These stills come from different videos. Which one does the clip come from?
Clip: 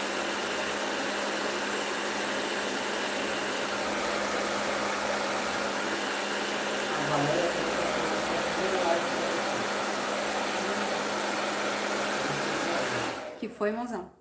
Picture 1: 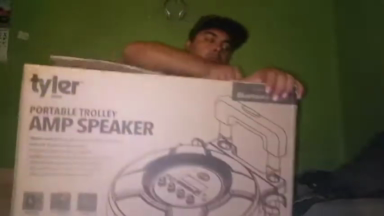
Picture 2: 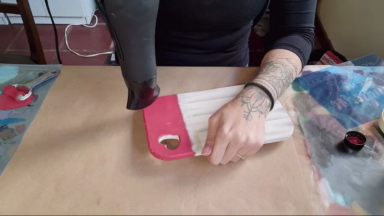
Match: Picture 2